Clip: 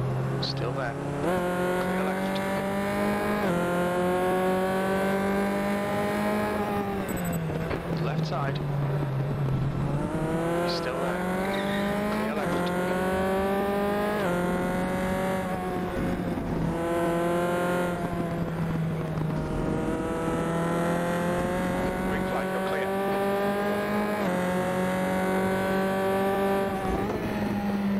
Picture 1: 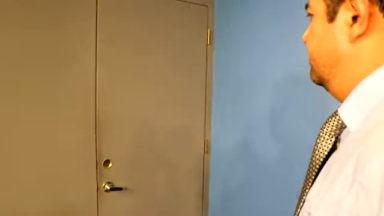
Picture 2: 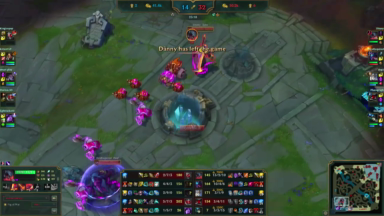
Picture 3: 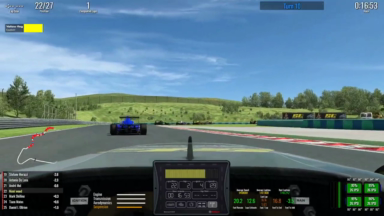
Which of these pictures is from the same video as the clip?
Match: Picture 3